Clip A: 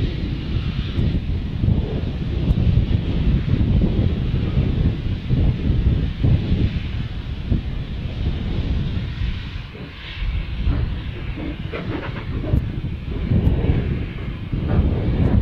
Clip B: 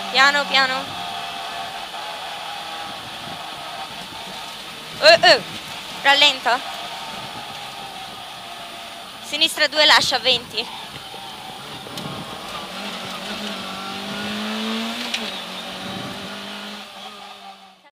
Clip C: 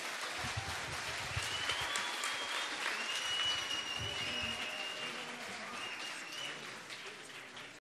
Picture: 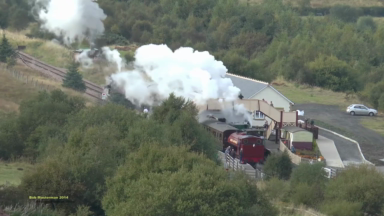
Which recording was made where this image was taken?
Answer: A